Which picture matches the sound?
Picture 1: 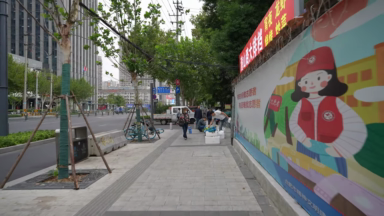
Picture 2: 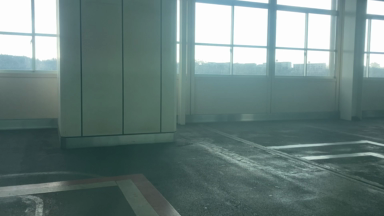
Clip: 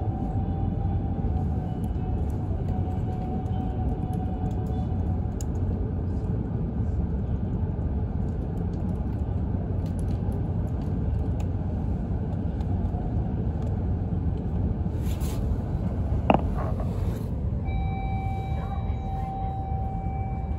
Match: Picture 2